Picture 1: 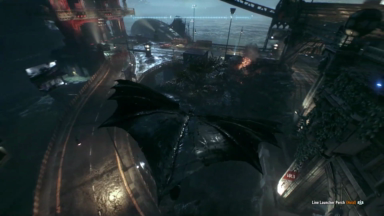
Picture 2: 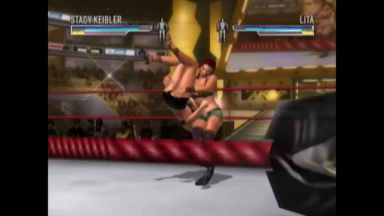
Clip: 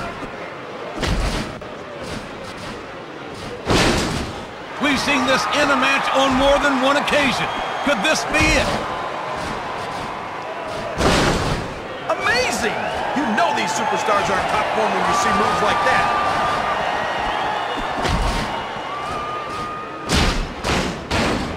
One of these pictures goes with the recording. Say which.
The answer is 2